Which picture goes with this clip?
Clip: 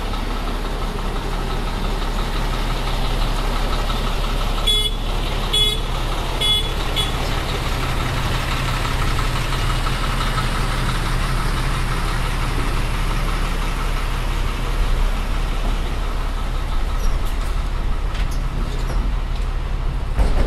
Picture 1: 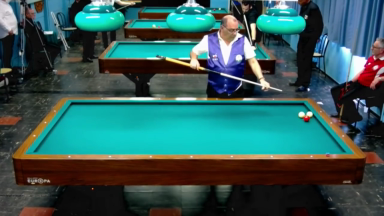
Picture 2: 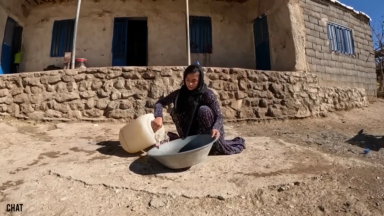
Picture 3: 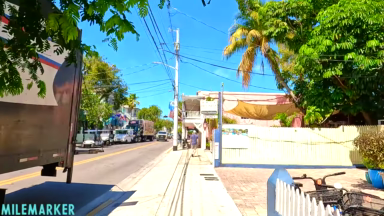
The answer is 3